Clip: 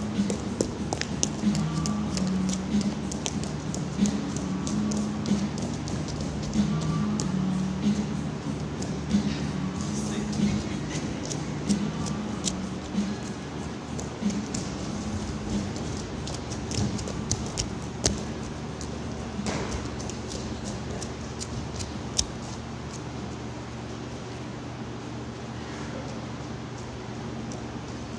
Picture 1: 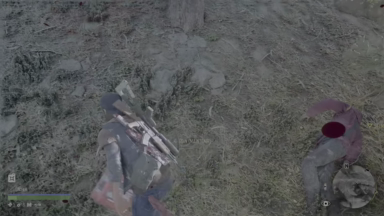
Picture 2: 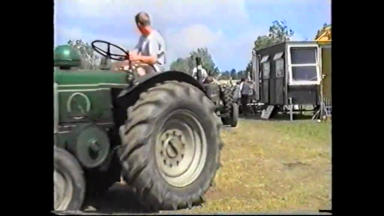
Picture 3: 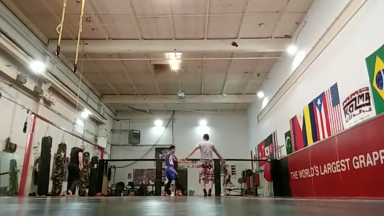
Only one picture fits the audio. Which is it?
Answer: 3